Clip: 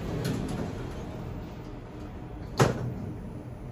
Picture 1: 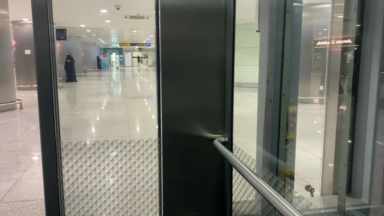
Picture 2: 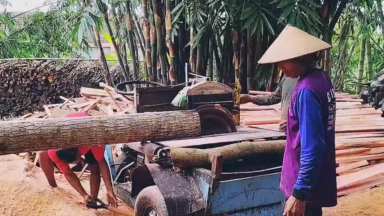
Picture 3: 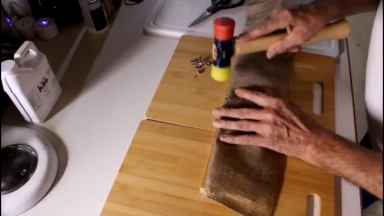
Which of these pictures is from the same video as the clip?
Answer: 1